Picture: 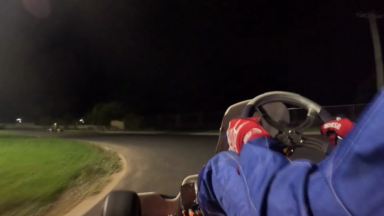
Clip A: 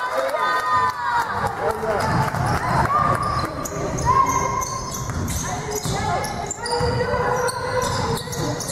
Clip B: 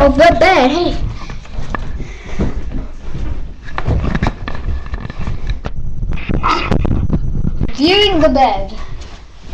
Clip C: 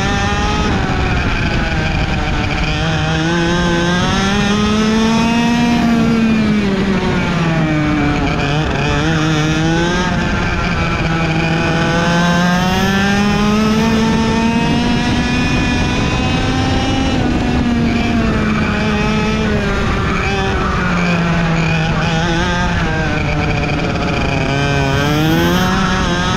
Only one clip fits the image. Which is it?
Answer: C